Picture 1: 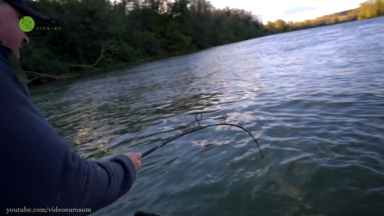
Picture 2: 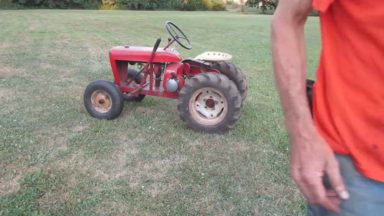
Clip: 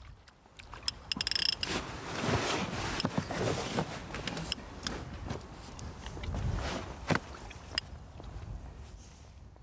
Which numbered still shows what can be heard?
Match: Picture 1